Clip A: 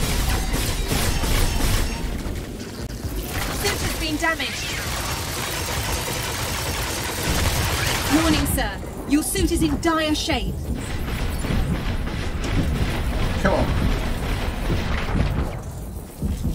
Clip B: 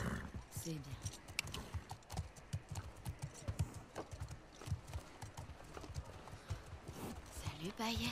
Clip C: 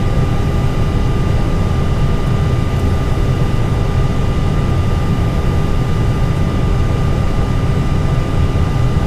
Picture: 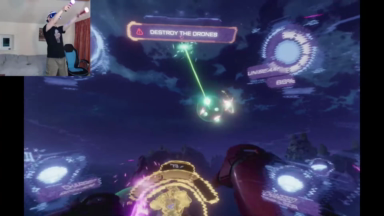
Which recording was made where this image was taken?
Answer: A